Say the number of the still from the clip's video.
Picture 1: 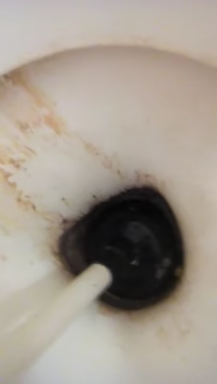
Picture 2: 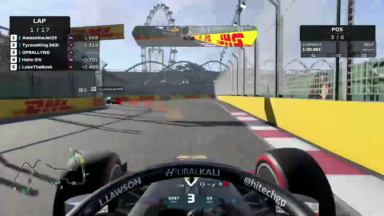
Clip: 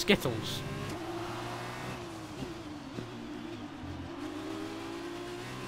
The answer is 2